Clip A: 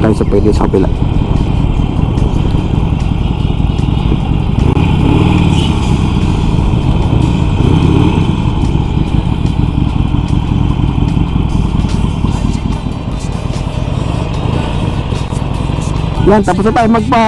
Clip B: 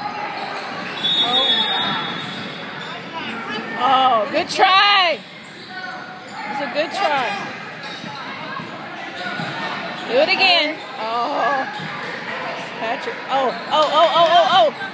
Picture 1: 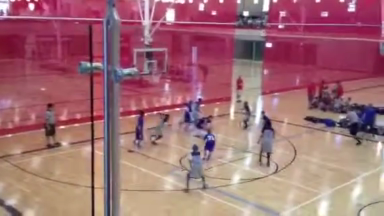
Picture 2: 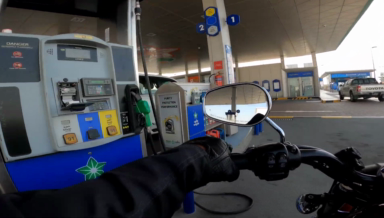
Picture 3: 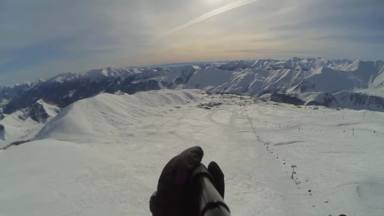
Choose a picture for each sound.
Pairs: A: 2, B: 1